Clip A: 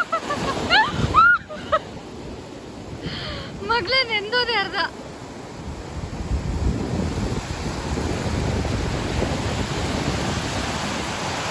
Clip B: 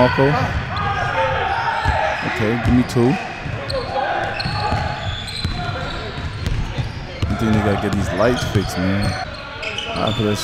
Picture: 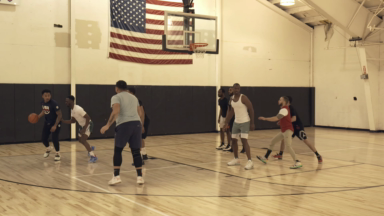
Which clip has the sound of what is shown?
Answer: B